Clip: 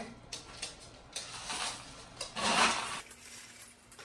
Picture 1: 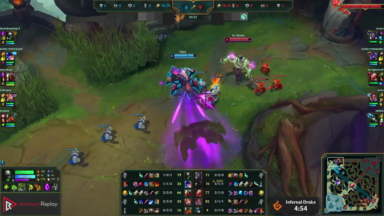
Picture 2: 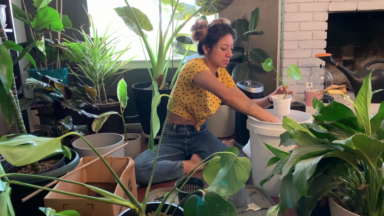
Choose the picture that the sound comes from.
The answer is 2